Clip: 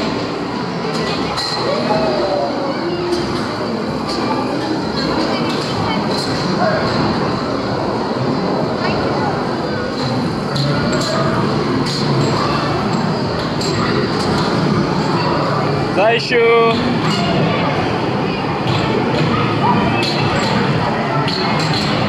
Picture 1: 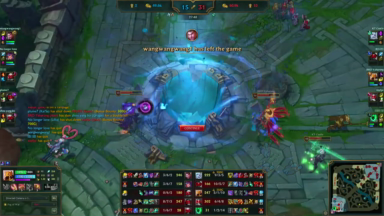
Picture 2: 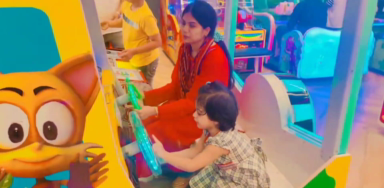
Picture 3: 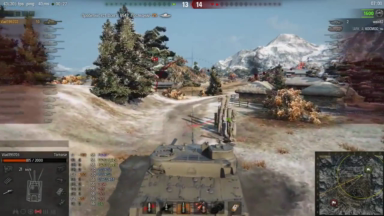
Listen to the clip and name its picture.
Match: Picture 2